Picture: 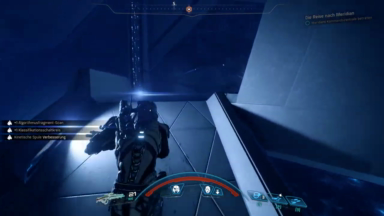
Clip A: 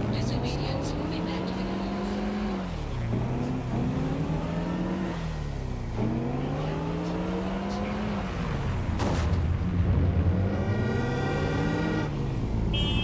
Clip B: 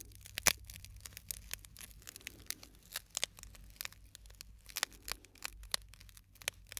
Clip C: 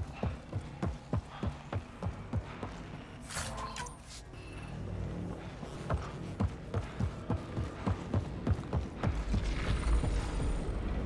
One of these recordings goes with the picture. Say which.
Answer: C